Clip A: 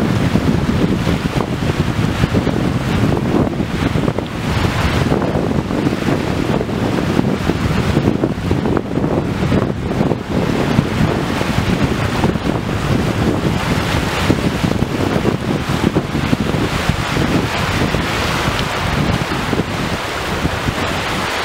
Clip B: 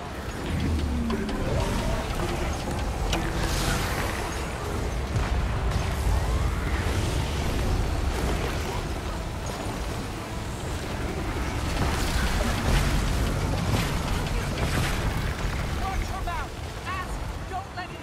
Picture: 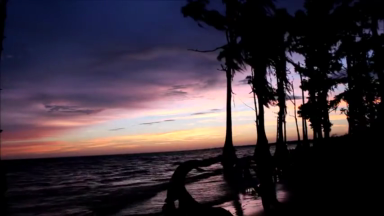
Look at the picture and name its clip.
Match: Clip A